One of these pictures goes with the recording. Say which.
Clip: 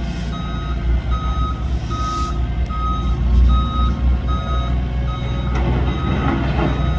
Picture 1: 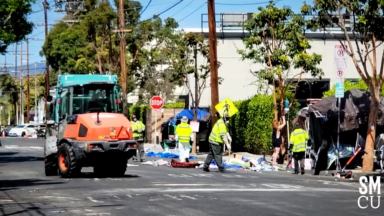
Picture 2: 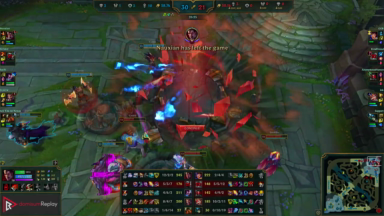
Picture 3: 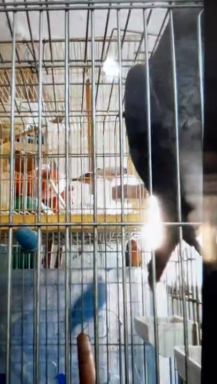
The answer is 1